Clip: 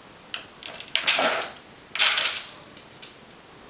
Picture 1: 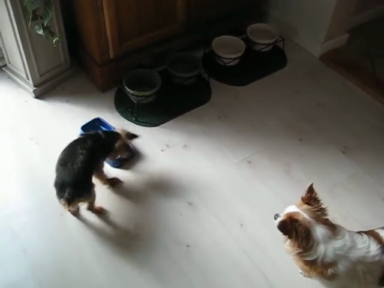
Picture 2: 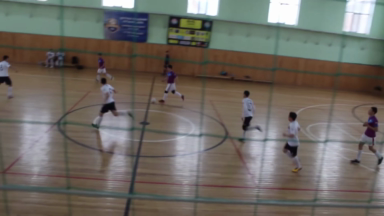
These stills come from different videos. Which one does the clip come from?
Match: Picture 1